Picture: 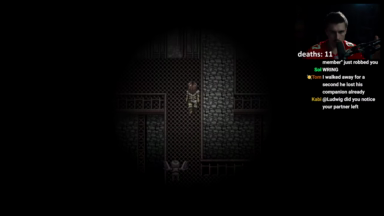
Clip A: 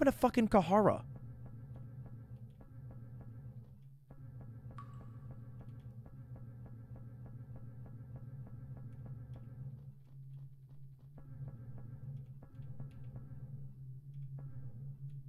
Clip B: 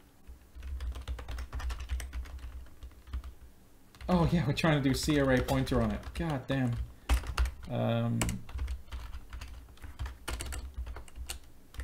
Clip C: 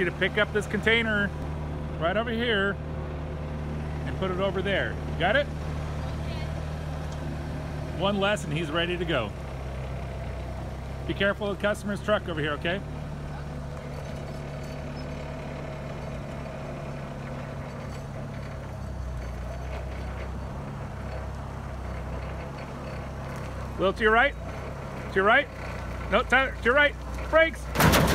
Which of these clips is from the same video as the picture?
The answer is A